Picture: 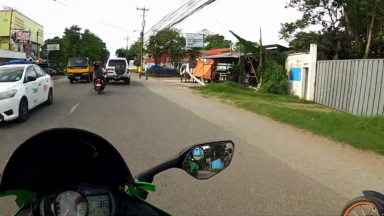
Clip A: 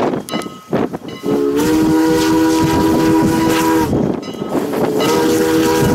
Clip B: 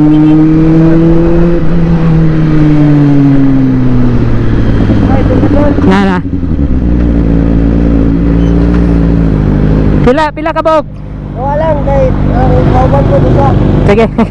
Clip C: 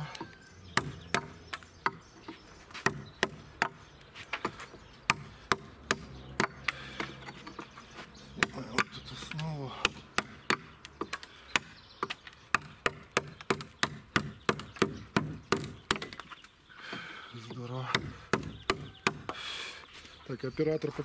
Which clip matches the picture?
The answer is B